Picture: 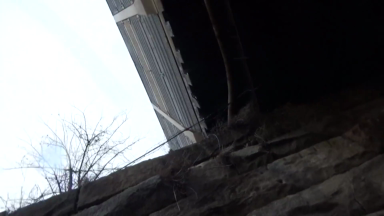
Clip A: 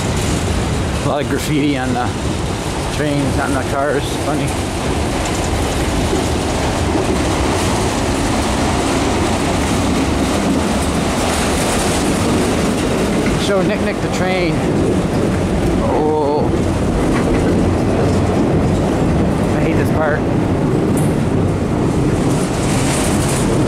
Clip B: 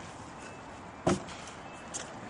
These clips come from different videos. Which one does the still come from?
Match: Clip A